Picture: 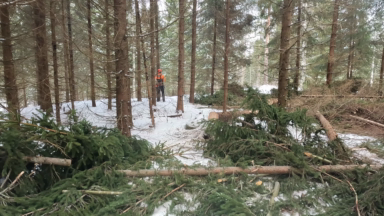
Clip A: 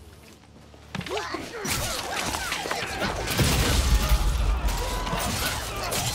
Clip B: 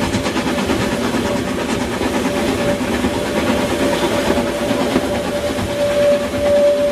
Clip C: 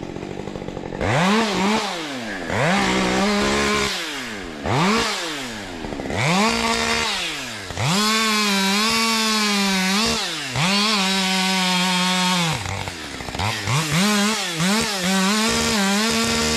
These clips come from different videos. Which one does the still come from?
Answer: C